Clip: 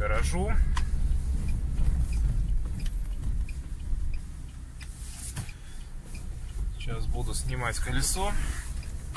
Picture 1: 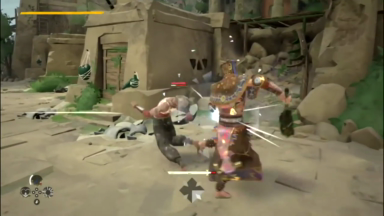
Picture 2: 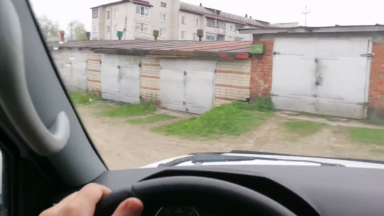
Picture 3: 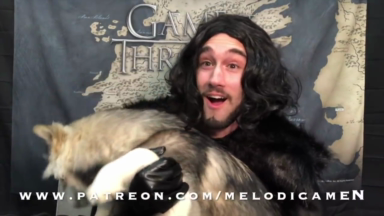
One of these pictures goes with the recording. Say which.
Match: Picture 2